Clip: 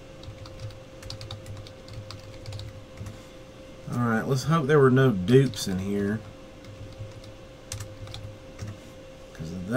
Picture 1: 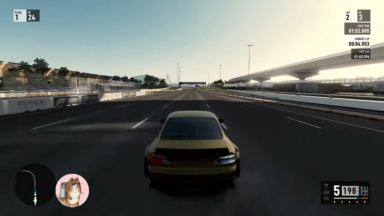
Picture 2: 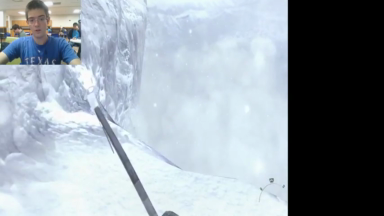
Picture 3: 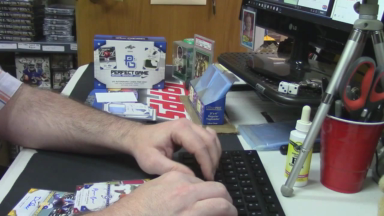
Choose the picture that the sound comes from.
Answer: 3